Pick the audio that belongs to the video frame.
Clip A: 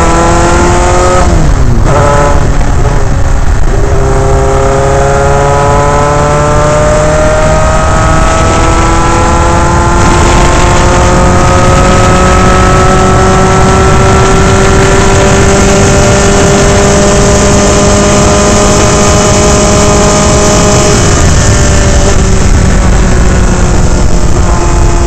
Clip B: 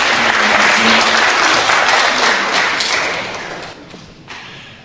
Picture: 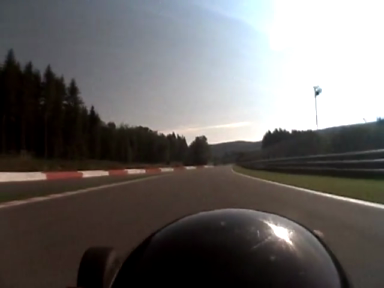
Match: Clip A